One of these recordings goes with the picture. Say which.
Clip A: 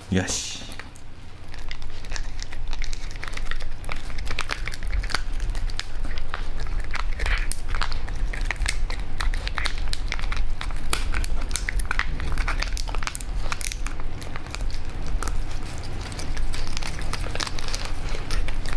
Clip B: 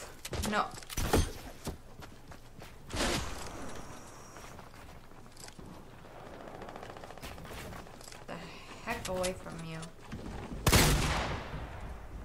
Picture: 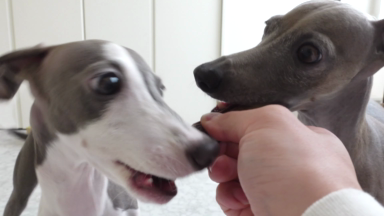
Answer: A